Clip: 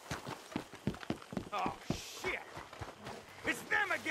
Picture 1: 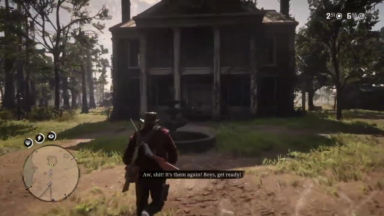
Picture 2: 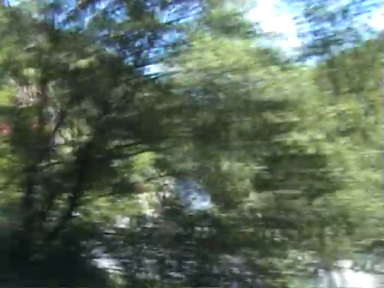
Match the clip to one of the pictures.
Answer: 1